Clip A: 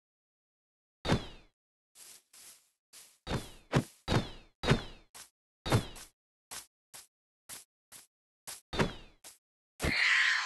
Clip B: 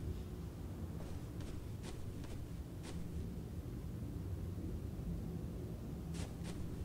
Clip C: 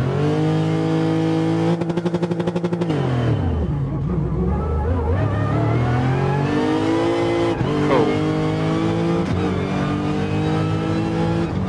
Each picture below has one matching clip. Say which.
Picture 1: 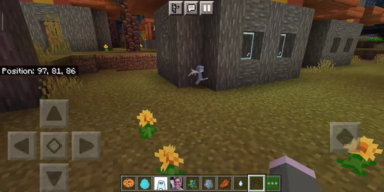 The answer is A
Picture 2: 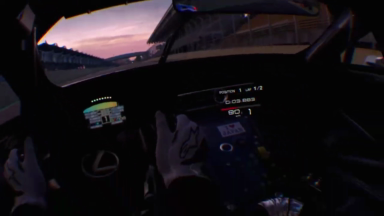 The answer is C